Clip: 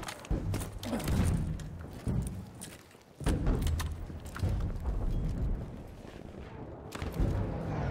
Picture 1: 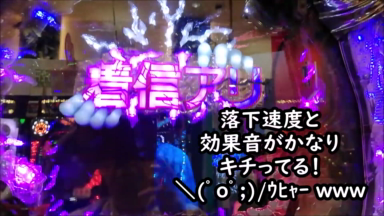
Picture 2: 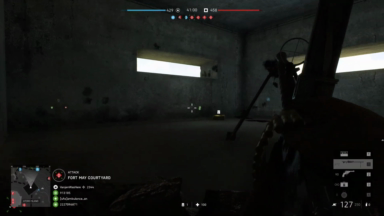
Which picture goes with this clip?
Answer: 2